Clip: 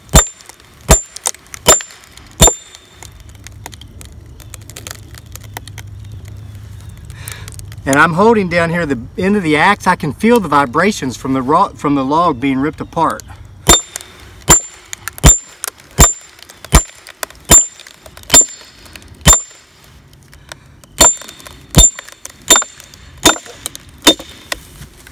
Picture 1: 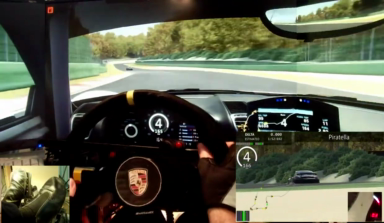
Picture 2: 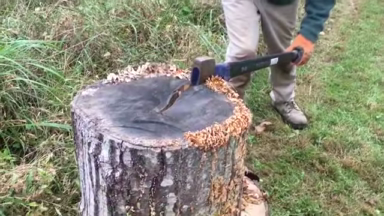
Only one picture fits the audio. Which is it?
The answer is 2